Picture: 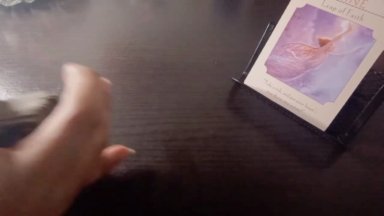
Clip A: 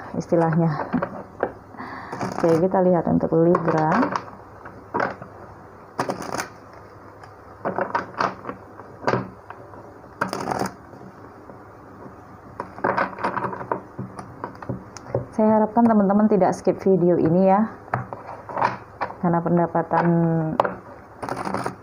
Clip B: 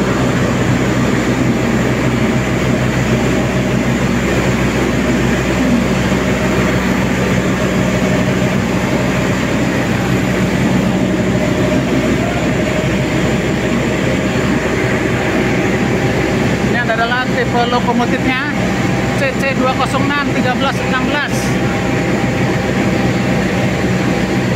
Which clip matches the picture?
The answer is A